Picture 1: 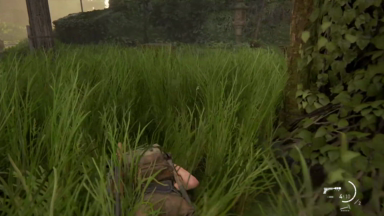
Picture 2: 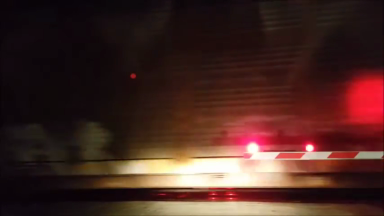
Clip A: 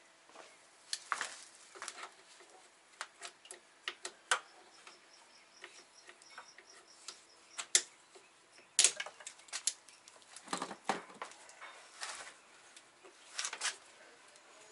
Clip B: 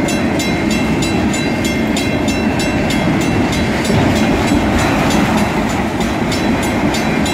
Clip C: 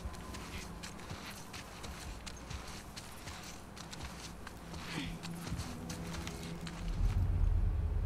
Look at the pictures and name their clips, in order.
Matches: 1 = C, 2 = B